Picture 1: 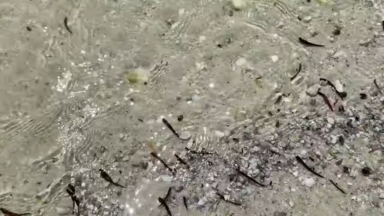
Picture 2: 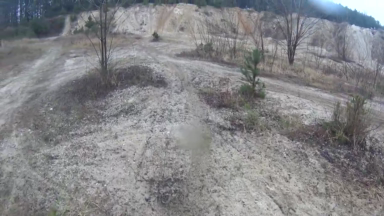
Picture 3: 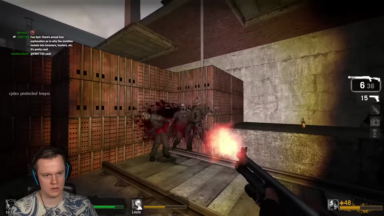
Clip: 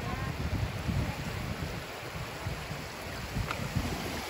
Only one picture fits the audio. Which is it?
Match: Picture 1